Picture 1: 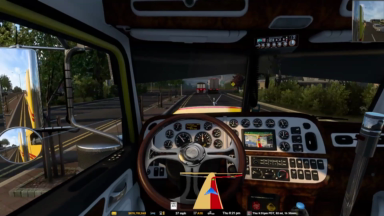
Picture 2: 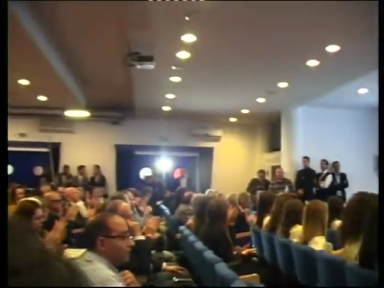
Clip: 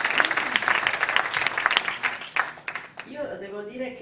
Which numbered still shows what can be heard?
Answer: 2